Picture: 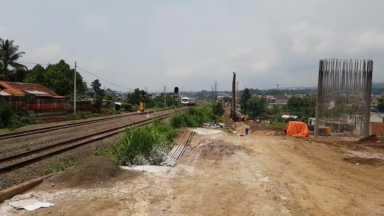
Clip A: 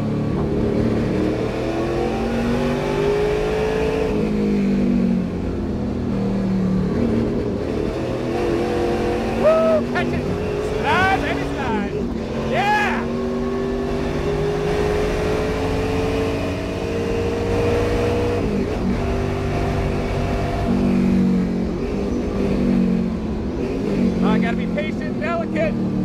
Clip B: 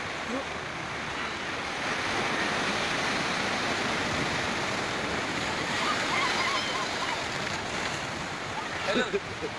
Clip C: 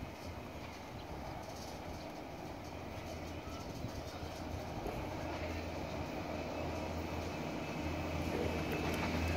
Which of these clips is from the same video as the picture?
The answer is C